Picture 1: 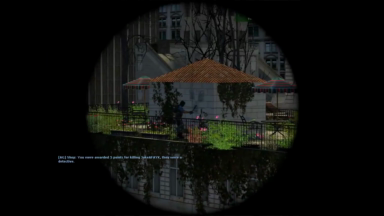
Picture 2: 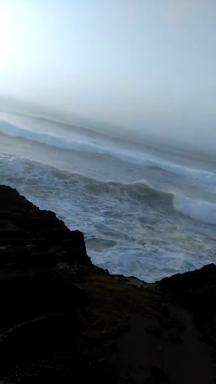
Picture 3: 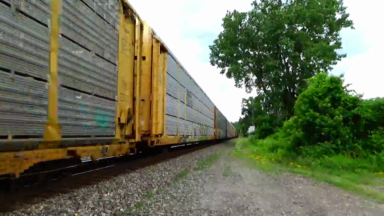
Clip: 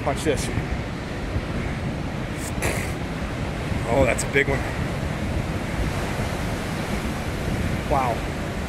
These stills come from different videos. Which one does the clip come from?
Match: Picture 2